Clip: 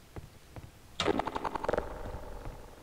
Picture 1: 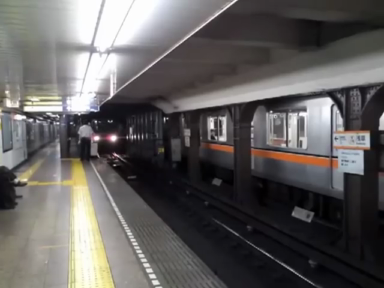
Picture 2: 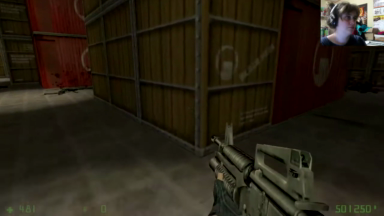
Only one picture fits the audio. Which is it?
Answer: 2